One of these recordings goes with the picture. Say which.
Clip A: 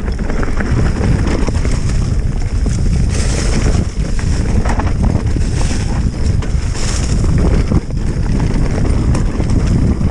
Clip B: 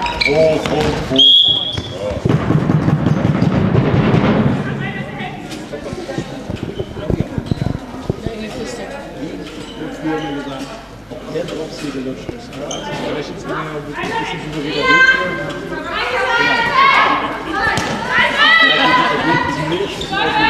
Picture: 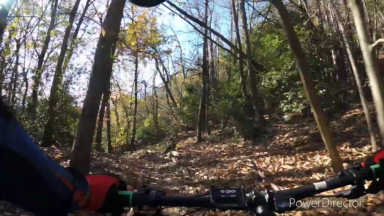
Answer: A